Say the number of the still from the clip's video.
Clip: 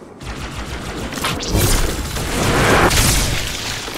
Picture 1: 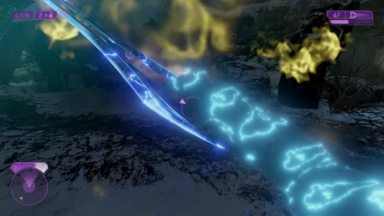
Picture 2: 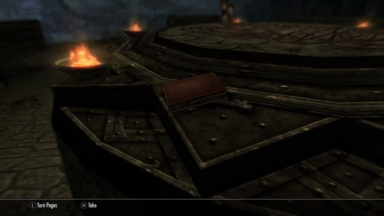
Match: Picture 1